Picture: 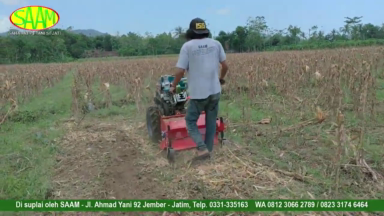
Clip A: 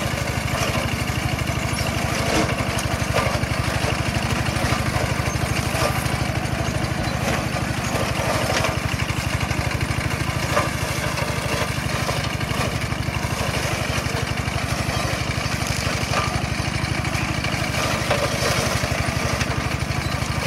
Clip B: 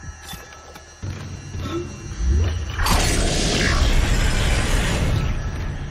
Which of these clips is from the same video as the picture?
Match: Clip A